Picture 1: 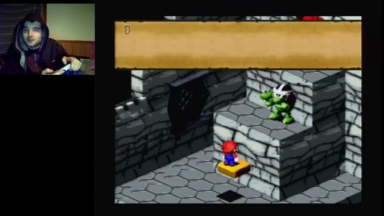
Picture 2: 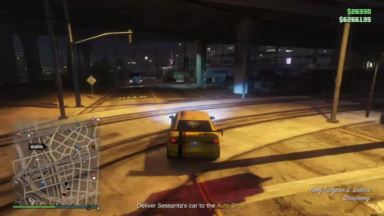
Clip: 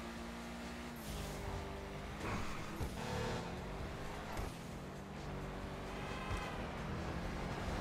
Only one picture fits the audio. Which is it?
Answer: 2